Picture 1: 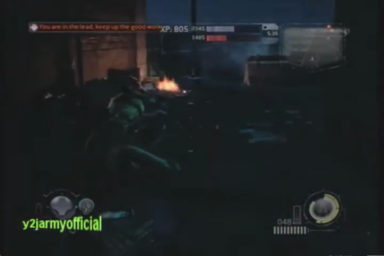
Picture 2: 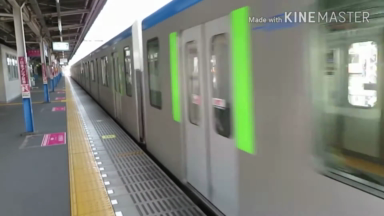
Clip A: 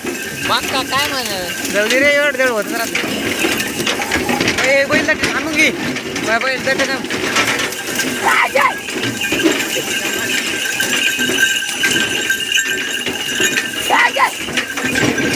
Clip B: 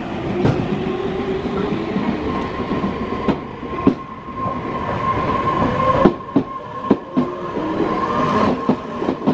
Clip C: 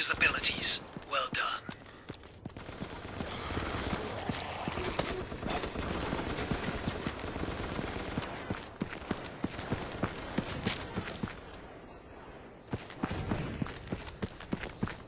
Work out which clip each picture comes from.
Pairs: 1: C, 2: B